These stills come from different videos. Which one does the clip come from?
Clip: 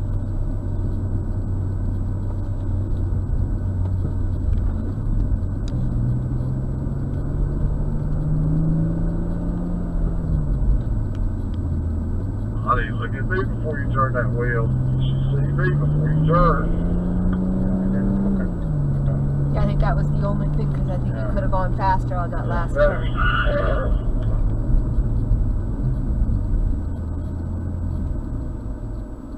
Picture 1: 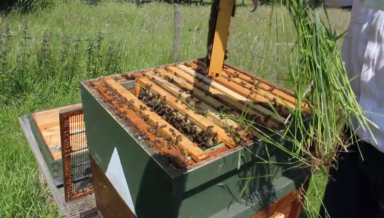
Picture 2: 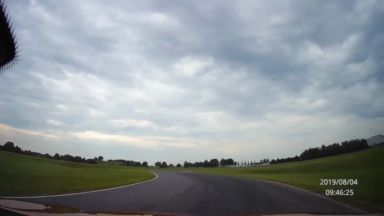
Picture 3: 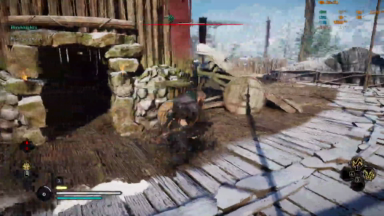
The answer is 2